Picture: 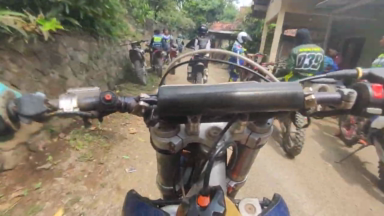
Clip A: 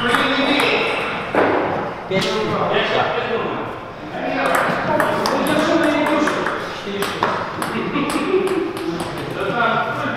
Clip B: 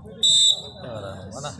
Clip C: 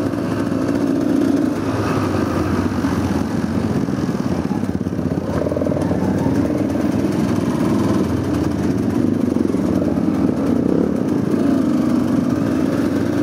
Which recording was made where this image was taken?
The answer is C